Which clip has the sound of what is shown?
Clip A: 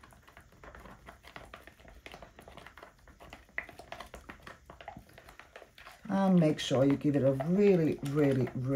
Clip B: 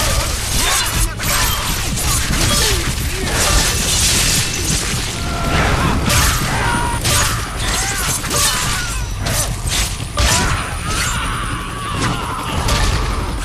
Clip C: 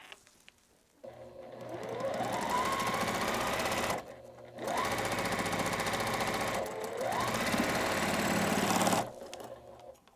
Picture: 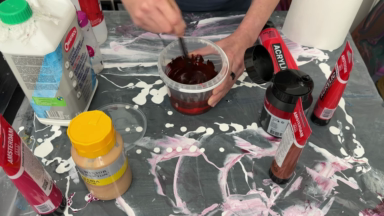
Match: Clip A